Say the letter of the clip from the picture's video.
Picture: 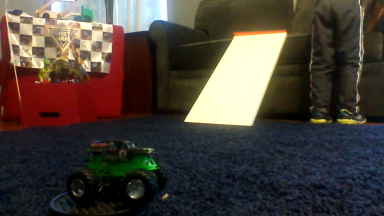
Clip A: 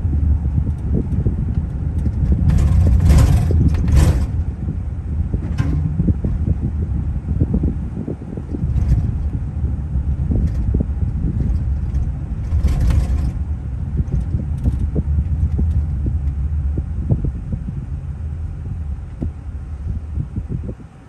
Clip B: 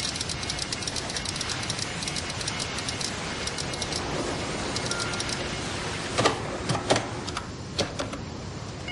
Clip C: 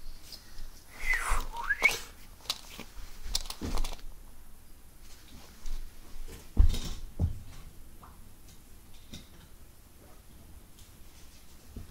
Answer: C